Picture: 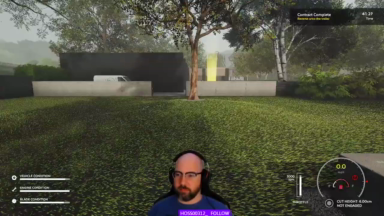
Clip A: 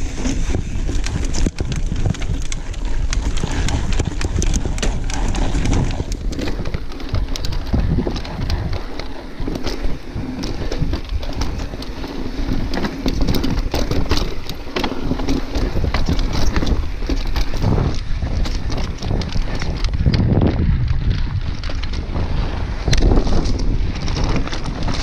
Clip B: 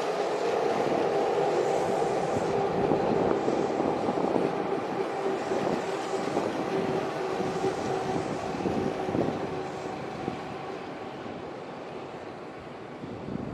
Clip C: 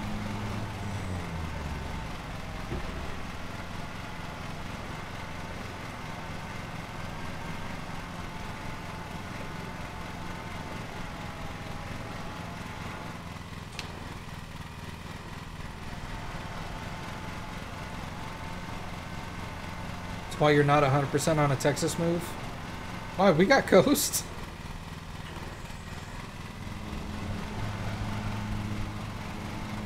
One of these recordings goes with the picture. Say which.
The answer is C